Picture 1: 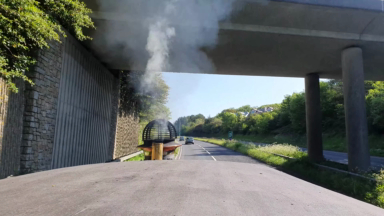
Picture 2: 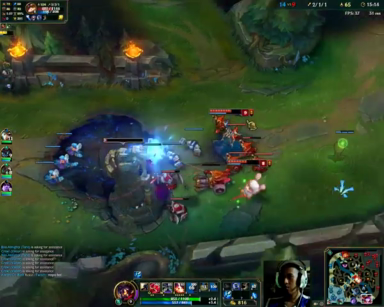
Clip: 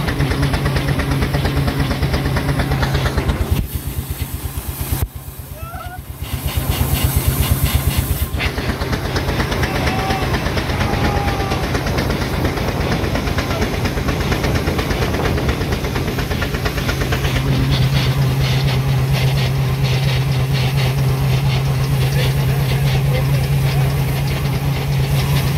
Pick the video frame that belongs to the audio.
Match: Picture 1